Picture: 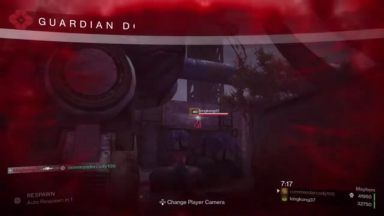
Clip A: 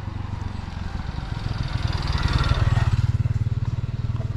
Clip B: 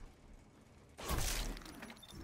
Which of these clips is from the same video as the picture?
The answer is B